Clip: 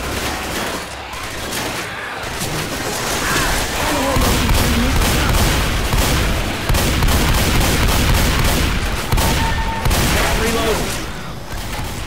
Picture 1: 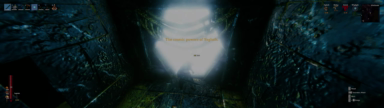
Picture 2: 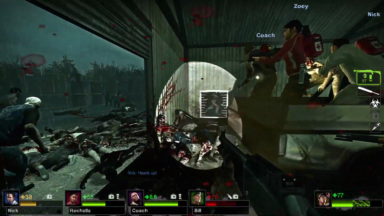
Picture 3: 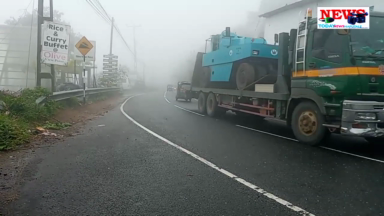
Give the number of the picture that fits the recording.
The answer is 2